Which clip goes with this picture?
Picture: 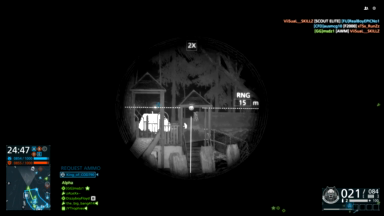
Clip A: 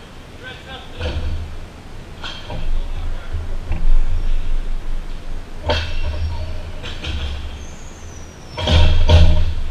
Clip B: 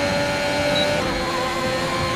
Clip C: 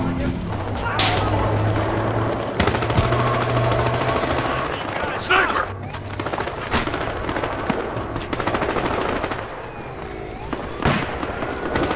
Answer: C